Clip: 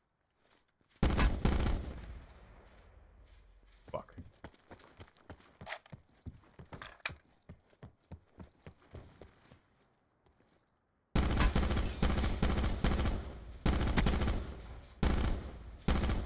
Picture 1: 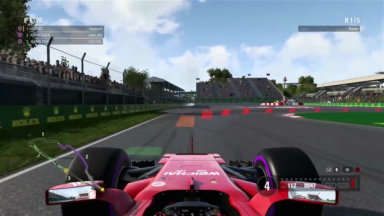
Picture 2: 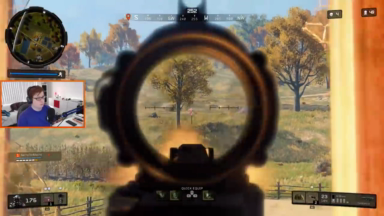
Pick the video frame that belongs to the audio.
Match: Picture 2